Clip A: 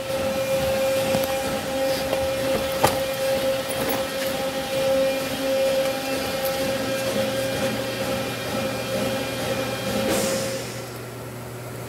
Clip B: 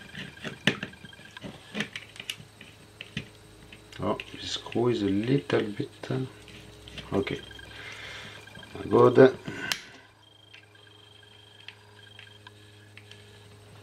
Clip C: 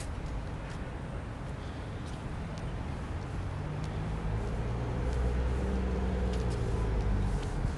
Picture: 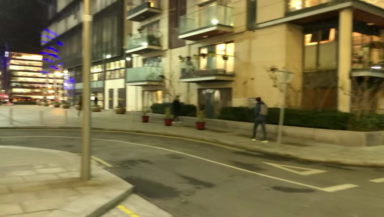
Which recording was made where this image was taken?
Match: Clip C